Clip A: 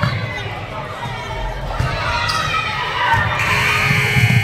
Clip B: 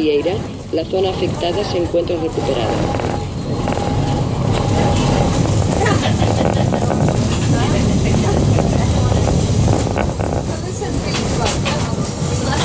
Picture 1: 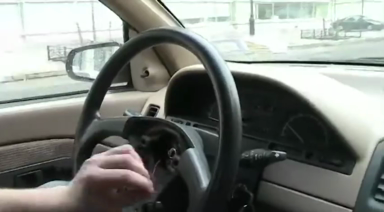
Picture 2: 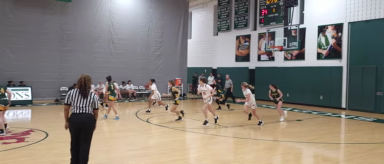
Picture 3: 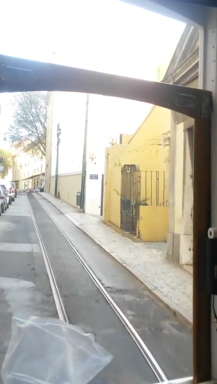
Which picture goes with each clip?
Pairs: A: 2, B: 3